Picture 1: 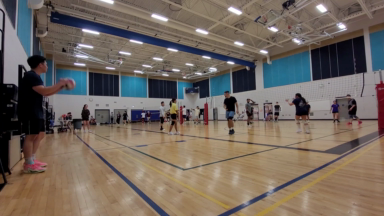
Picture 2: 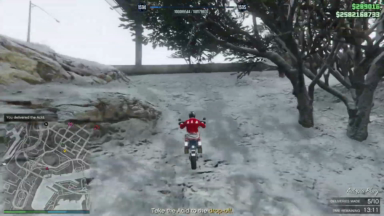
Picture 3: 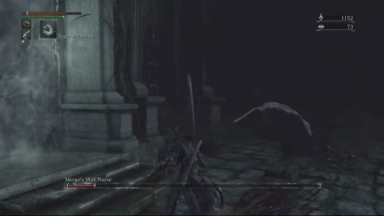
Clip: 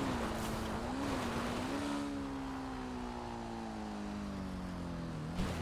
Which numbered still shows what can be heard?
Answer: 2